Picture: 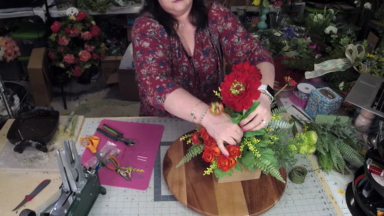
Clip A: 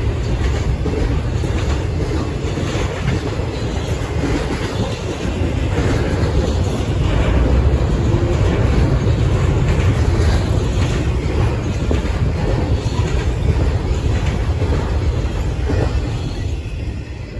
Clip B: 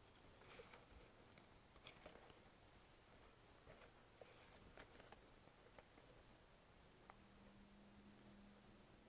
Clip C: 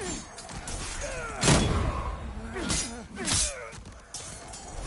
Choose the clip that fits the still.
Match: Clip B